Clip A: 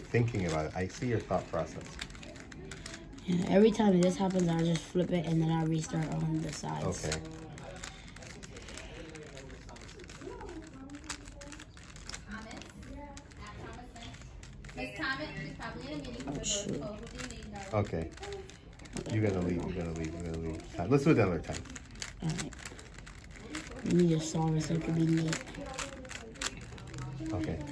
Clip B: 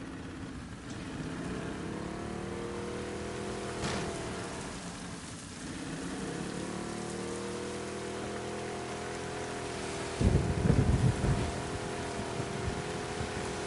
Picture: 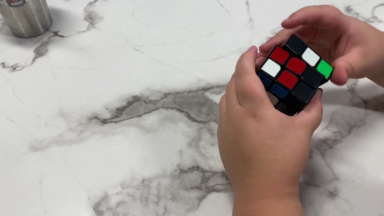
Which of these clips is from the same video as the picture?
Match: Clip A